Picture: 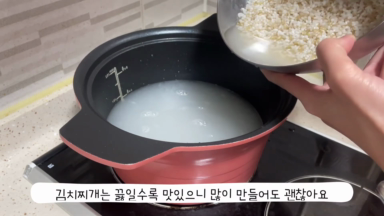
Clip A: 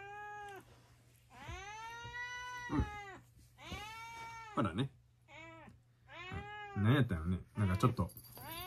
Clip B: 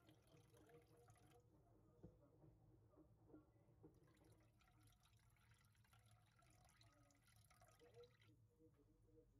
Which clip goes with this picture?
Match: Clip B